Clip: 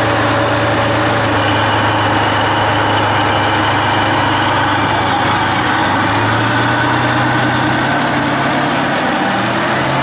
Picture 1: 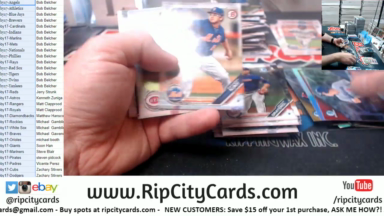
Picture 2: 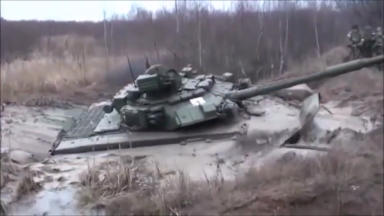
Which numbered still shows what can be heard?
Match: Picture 2